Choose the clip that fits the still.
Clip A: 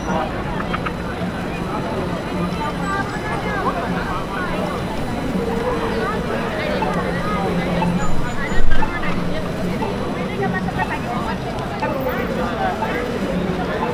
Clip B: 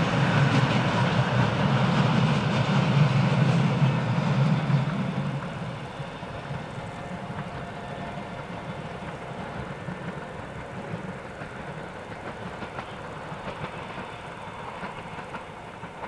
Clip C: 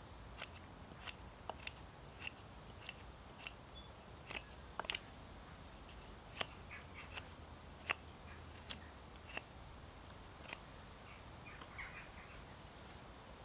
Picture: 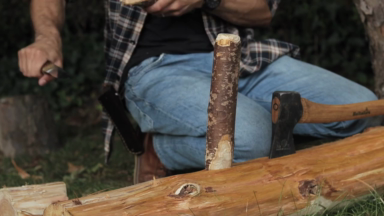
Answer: C